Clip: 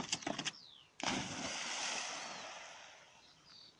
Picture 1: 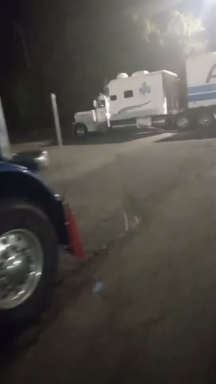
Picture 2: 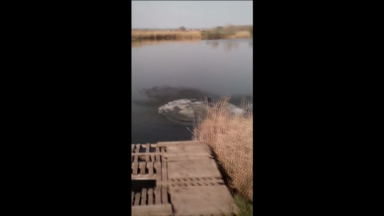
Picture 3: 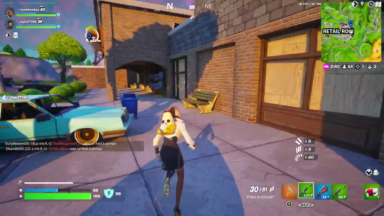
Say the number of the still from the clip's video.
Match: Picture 2